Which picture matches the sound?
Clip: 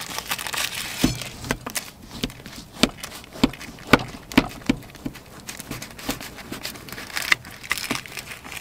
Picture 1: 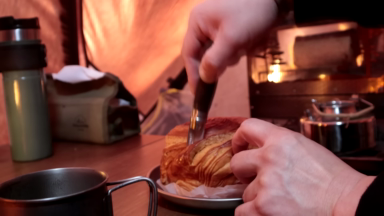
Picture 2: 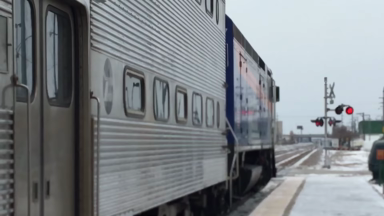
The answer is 1